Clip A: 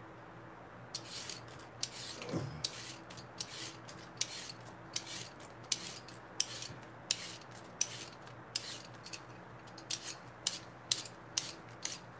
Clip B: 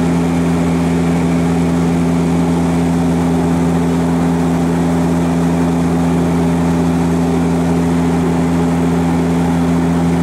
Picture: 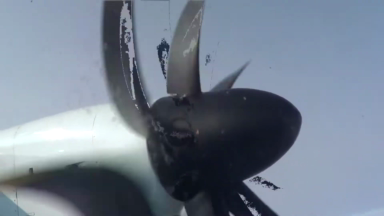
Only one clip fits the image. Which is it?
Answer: B